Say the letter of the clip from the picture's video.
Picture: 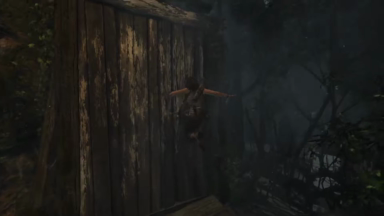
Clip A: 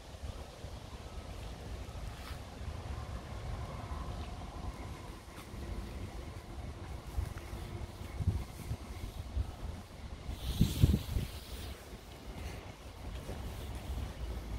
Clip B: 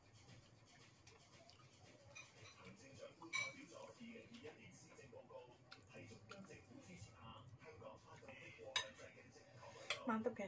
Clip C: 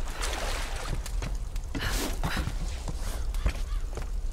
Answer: C